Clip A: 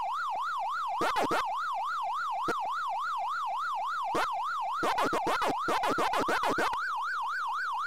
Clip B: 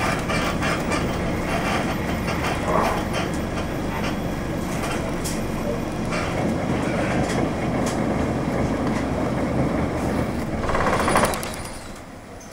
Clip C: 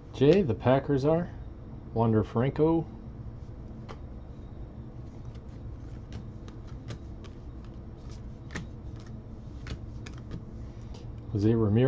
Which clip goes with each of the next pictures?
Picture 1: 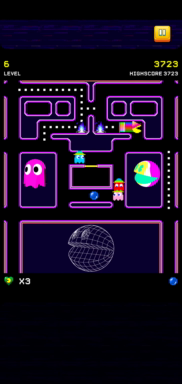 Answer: A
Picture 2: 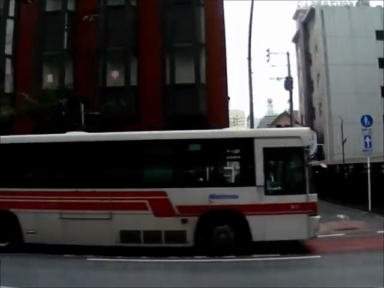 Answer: B